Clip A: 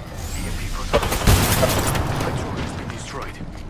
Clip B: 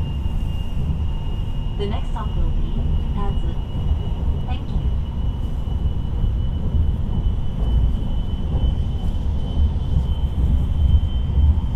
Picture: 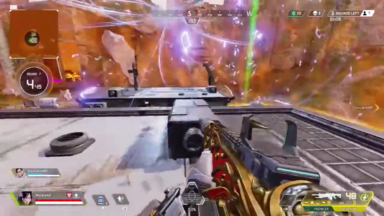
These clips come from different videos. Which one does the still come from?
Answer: A